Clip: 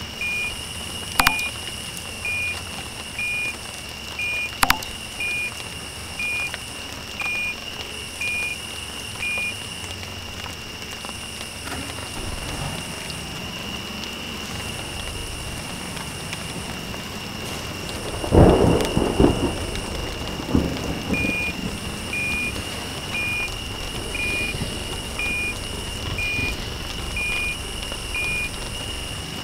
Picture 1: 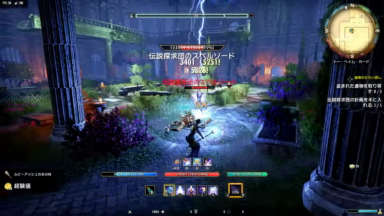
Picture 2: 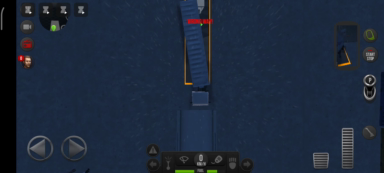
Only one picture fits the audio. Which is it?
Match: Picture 2